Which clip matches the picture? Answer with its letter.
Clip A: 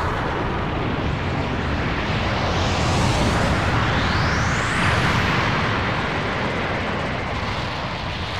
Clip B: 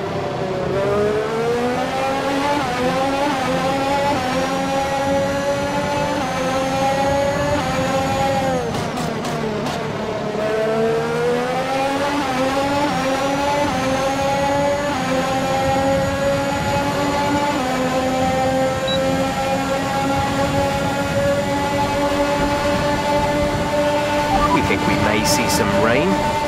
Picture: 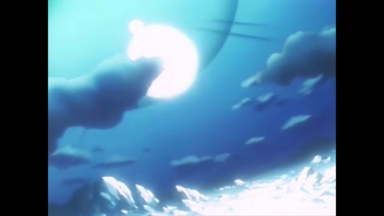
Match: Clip A